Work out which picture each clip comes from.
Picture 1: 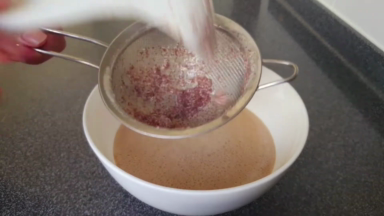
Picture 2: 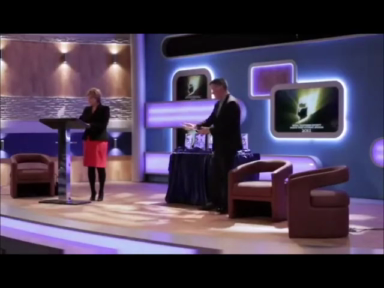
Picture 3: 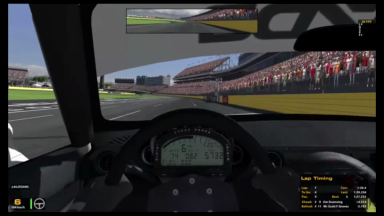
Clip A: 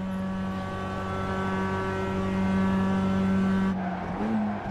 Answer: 3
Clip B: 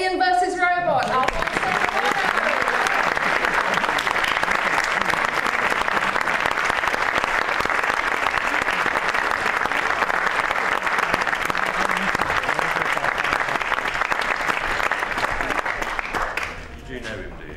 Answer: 2